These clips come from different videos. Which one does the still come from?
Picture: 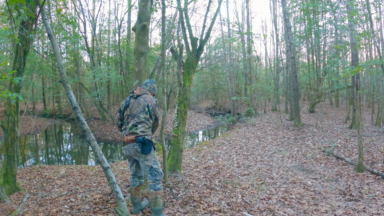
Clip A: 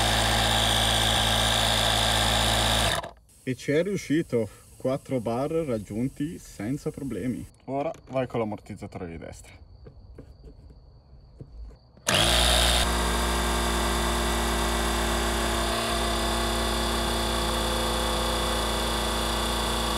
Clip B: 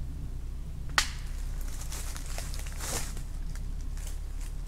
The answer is B